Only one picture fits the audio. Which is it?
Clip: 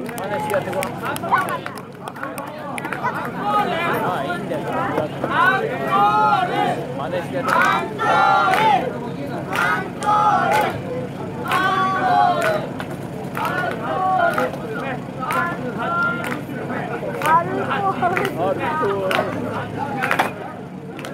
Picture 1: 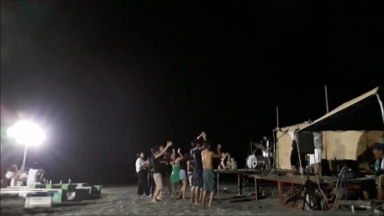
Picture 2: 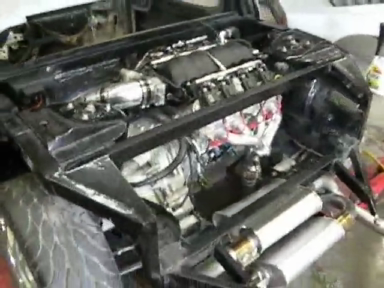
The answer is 1